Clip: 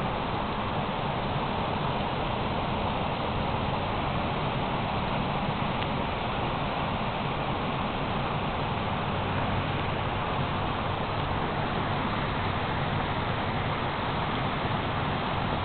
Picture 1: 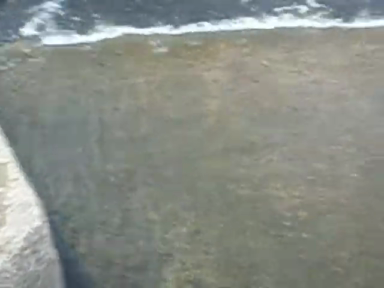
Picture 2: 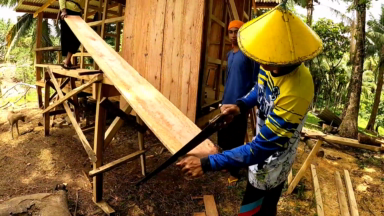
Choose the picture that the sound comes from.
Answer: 1